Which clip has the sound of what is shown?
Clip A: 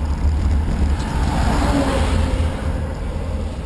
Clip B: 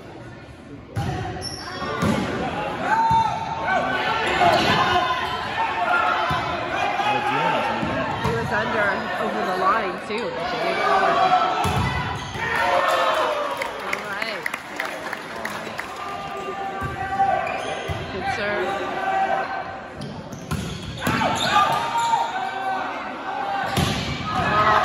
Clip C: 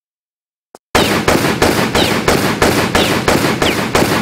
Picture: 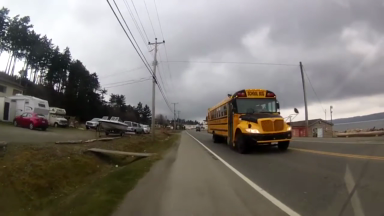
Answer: A